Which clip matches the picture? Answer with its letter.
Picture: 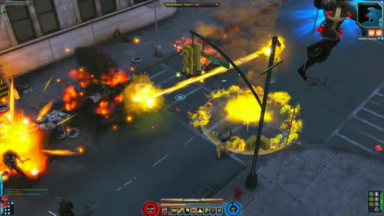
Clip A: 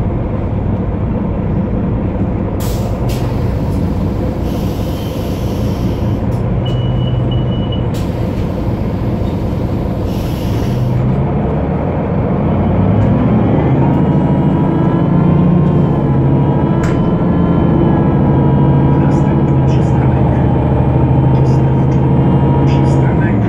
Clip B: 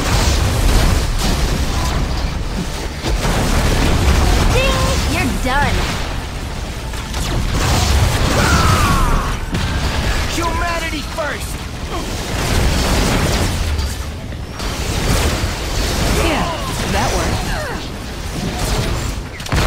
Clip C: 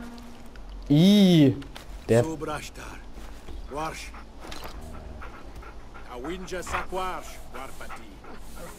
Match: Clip B